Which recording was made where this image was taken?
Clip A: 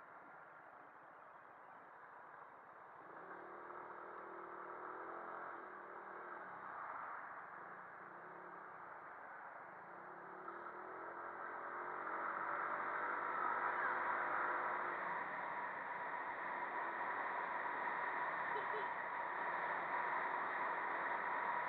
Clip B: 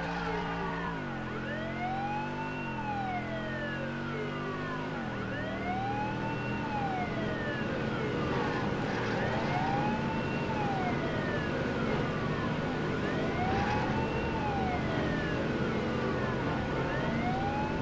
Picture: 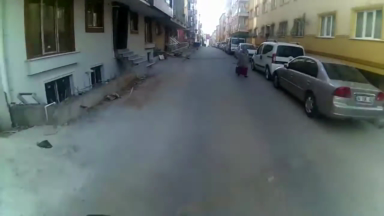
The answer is A